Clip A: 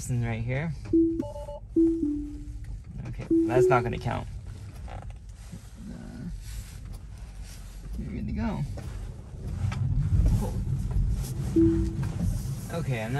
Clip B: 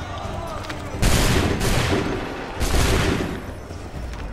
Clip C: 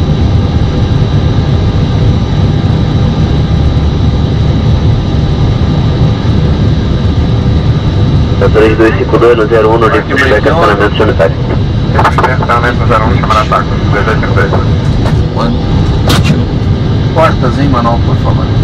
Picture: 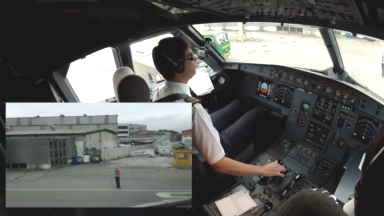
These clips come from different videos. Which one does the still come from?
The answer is C